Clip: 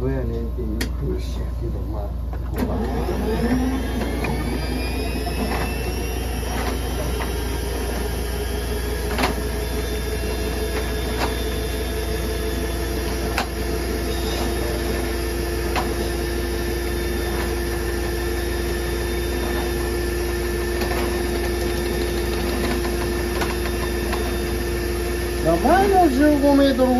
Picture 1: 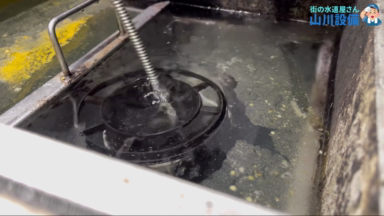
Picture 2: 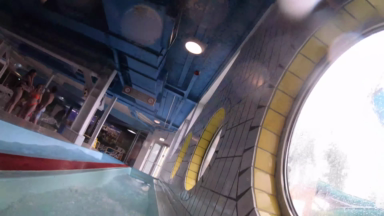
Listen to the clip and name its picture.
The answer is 1